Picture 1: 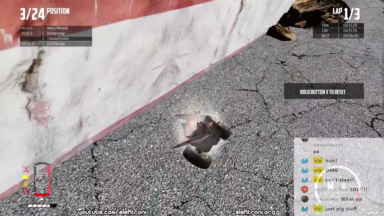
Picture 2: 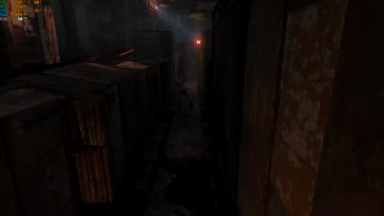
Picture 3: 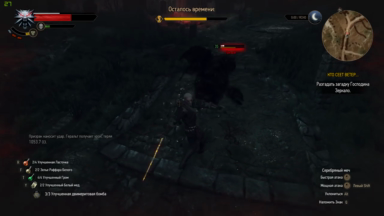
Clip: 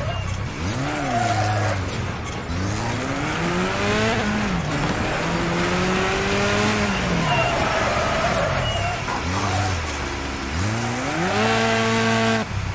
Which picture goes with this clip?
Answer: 1